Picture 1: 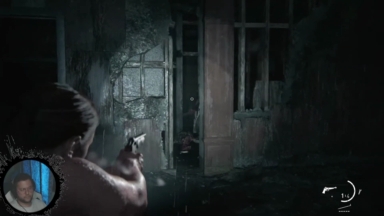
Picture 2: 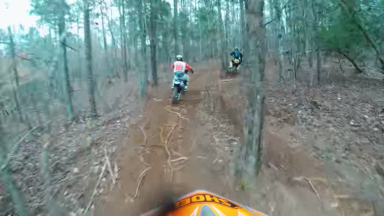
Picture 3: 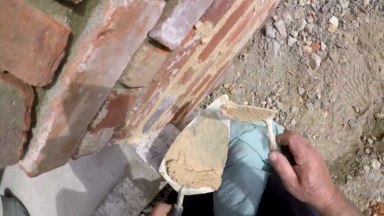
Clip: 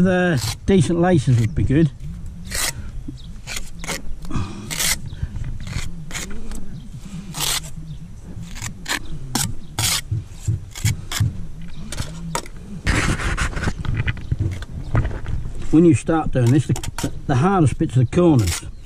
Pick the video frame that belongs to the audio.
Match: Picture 3